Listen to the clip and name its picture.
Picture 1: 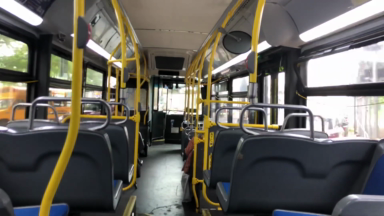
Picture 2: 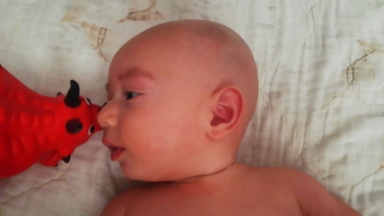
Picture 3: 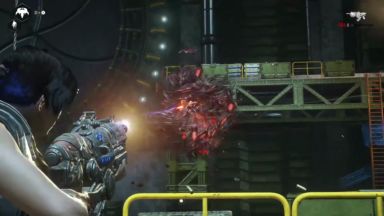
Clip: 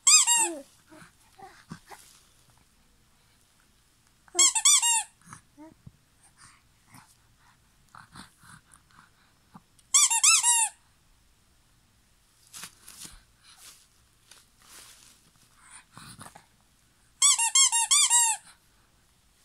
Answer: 2